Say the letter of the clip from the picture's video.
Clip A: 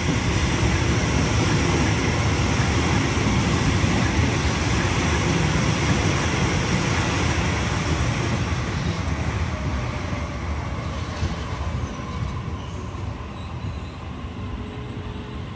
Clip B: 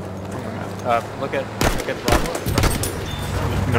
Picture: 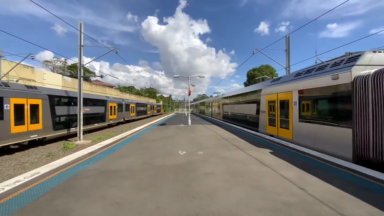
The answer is A